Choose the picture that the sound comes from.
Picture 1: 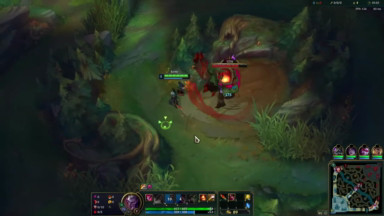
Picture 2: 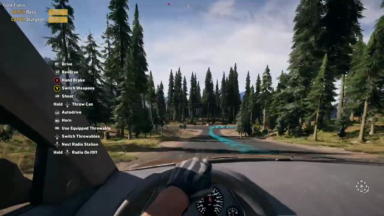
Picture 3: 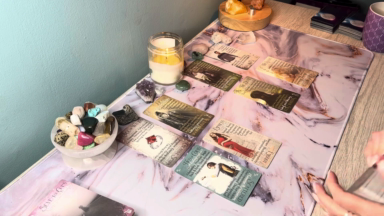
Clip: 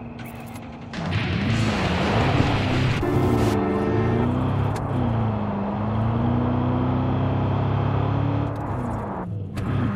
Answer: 2